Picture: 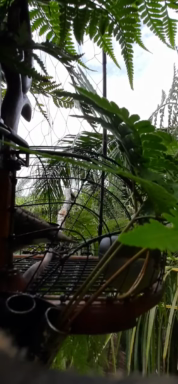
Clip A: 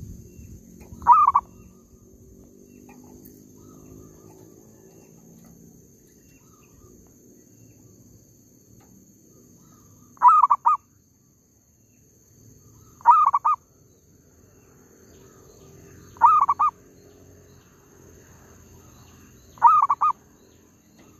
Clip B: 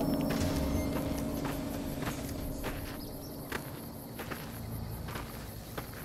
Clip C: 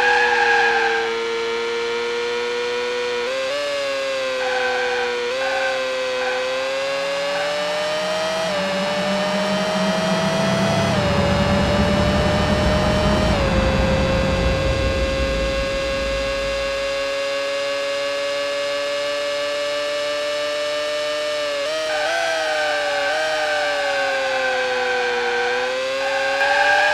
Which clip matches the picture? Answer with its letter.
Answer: A